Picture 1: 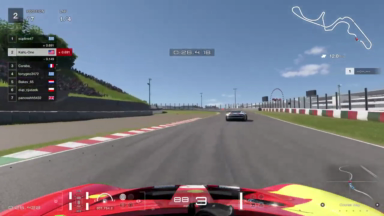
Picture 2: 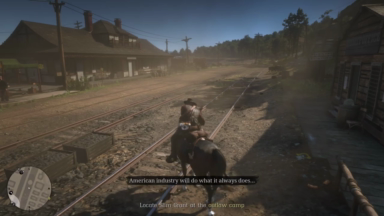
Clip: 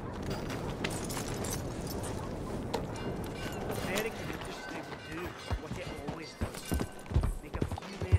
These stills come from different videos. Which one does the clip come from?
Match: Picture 2